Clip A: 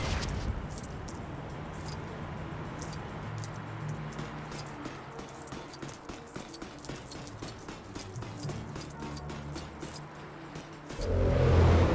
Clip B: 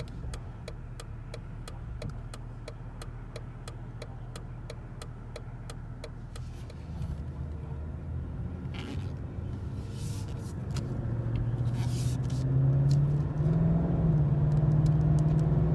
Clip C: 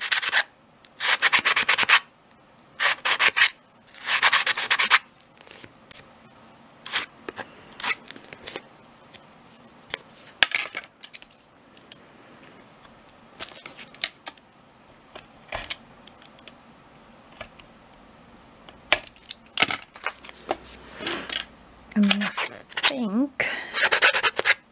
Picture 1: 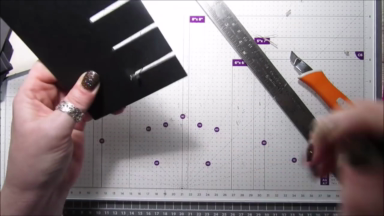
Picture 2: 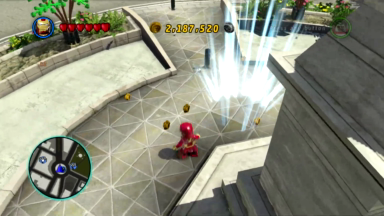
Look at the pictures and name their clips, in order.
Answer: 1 C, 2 A